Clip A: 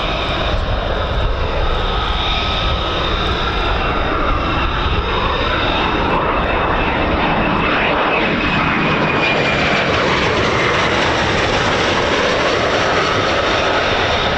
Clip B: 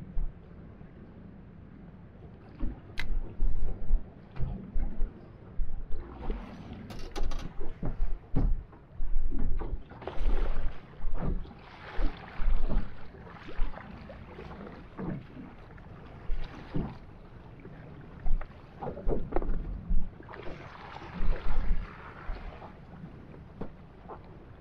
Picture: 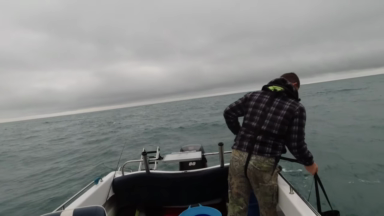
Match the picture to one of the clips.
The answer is B